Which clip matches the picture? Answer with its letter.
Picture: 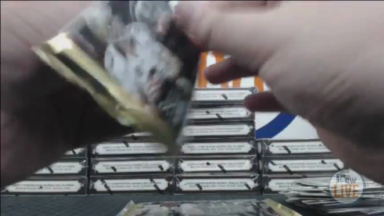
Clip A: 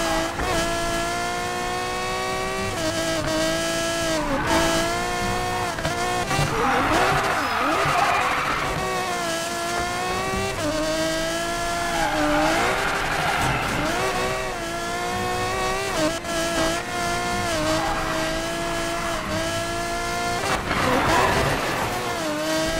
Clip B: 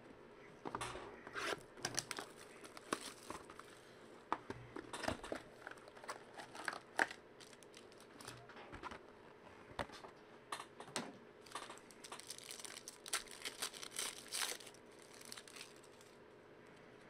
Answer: B